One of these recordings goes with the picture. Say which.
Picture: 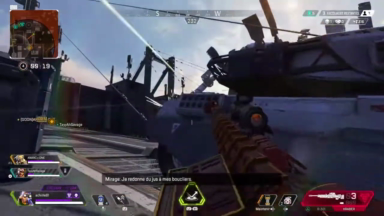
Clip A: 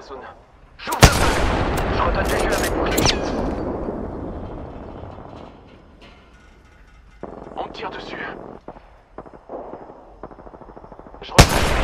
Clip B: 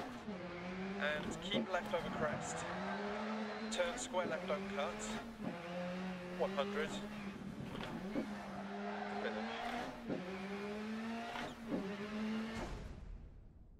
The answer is A